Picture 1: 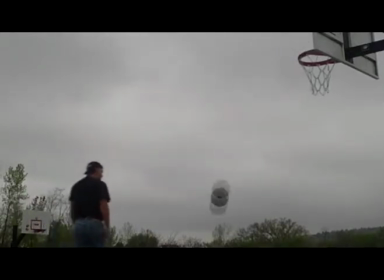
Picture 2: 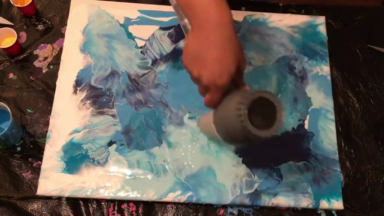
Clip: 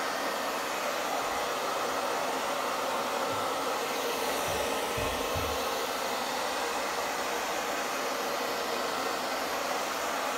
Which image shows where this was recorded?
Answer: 2